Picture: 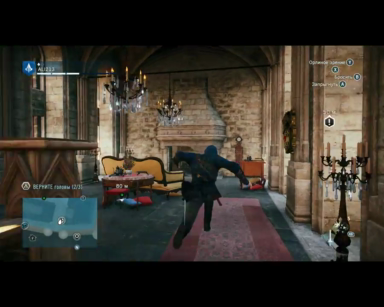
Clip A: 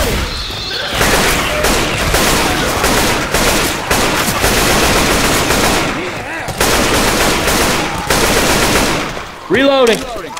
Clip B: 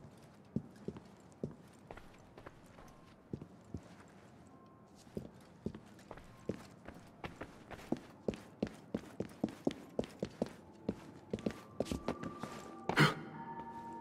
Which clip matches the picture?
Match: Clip B